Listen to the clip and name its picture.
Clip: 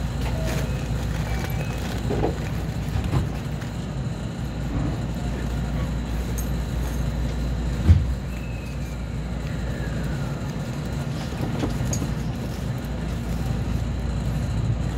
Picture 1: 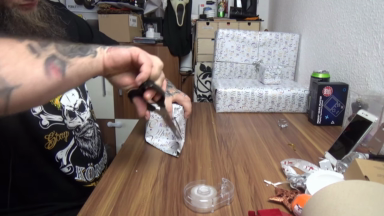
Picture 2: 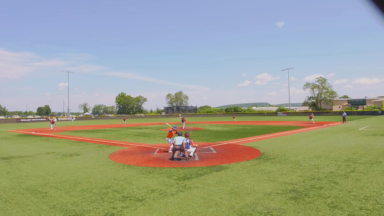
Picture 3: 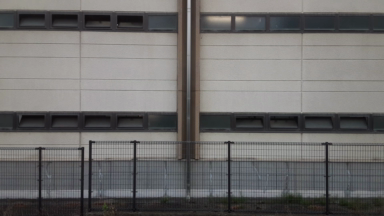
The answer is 3